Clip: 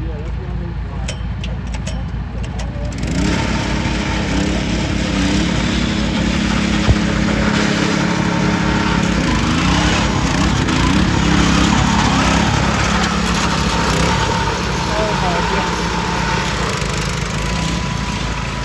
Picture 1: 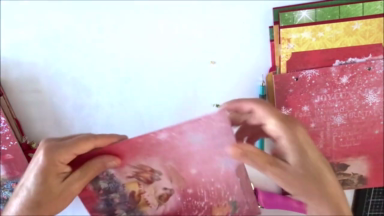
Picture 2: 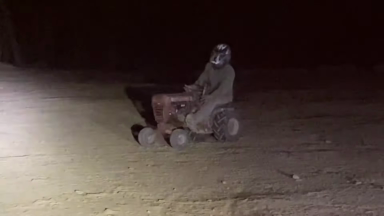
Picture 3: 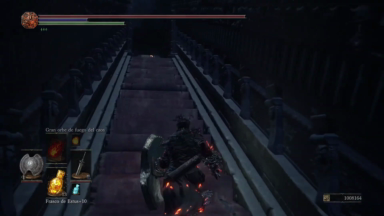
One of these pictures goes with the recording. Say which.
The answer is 2